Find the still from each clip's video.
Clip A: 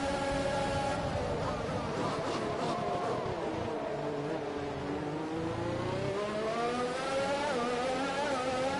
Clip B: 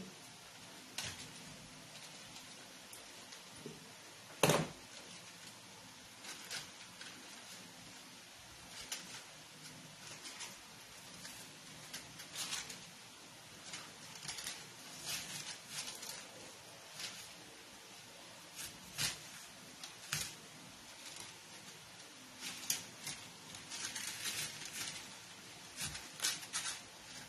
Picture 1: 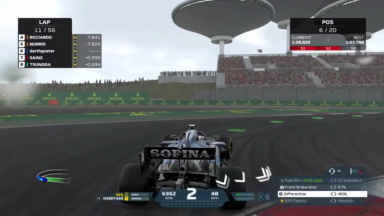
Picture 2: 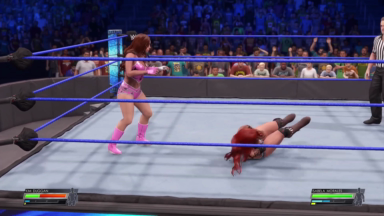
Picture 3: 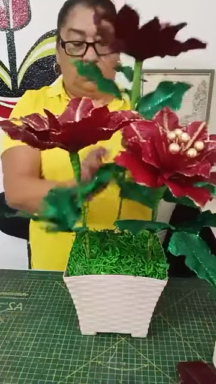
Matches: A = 1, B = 3